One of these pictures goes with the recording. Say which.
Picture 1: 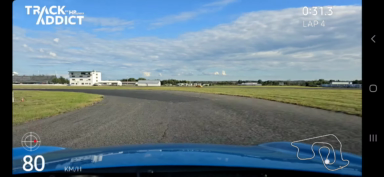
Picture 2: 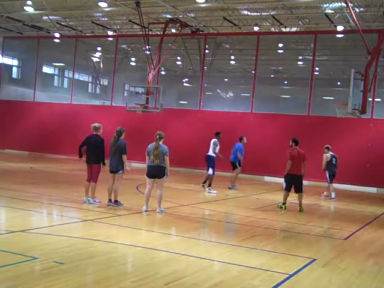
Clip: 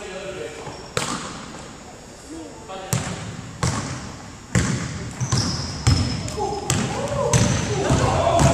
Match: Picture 2